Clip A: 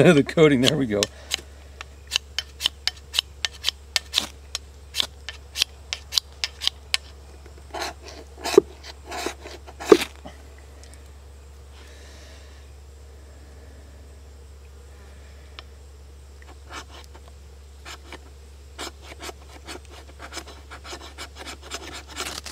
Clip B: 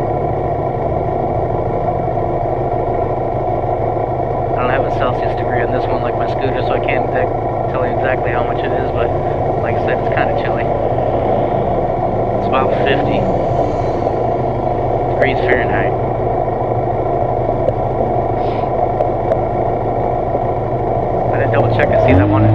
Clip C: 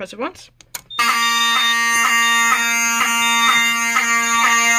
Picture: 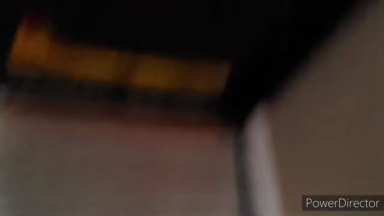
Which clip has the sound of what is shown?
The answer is C